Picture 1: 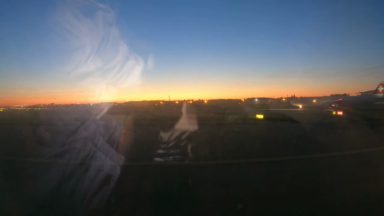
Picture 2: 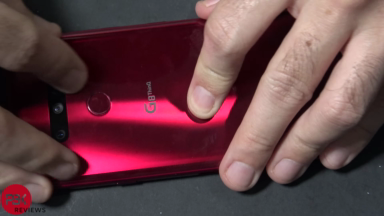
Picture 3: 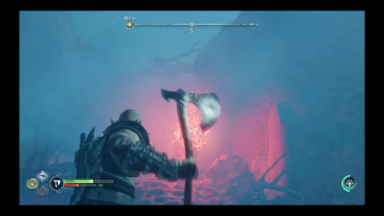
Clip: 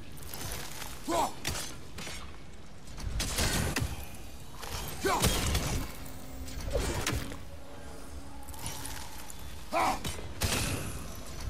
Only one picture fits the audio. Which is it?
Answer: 3